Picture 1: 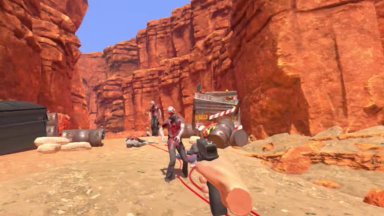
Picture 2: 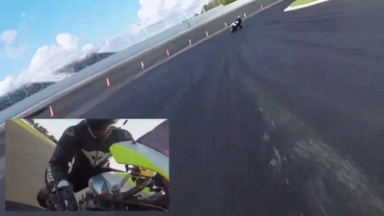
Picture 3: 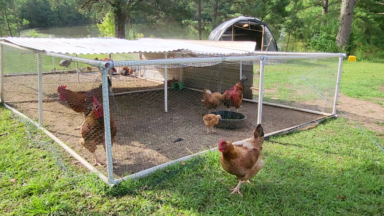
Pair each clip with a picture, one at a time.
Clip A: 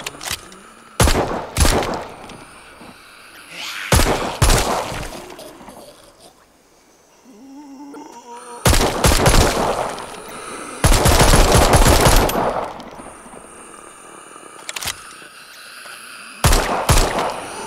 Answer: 1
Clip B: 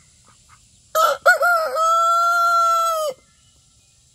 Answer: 3